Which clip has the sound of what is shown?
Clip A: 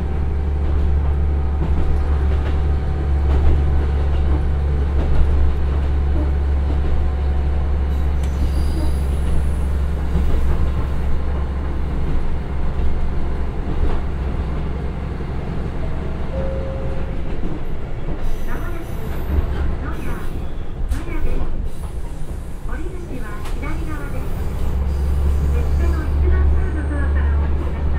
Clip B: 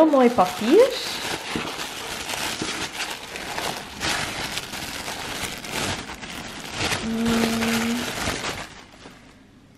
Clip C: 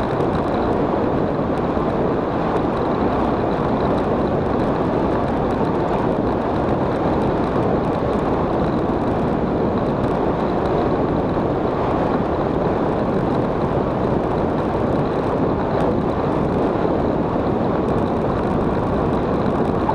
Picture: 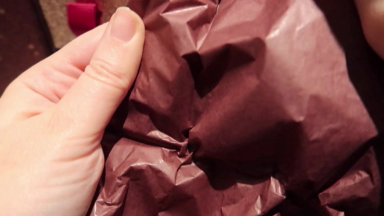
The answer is B